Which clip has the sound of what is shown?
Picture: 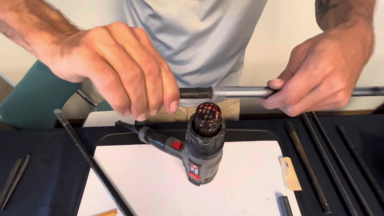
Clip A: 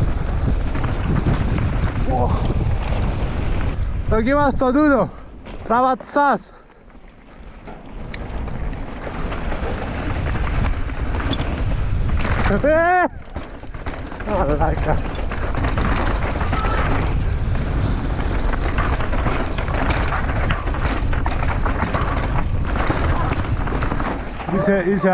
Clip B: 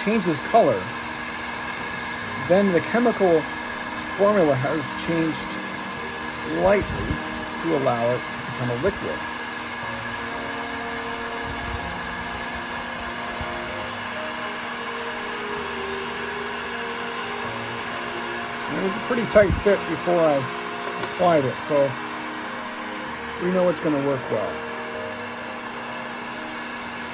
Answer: B